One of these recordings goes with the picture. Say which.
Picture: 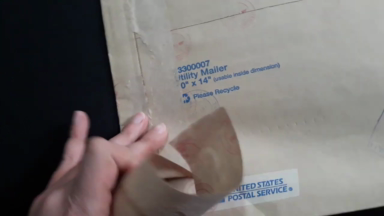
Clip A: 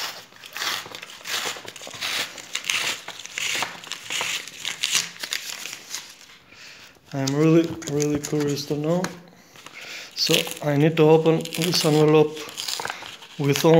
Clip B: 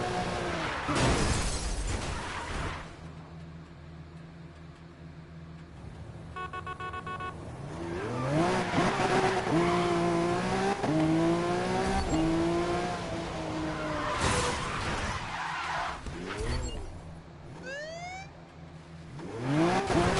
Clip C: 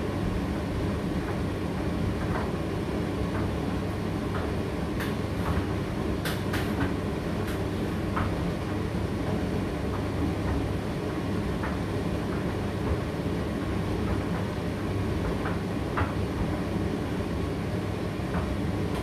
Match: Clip A